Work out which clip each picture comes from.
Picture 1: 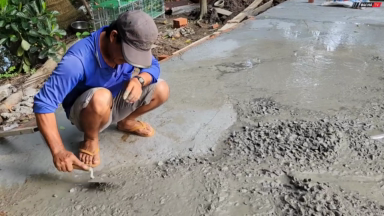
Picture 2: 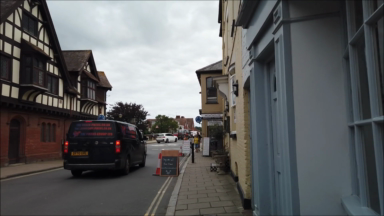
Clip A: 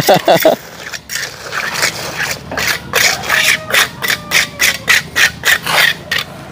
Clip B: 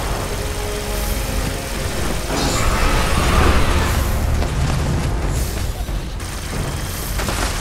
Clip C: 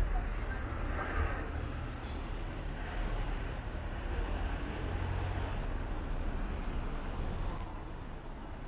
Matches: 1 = A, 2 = C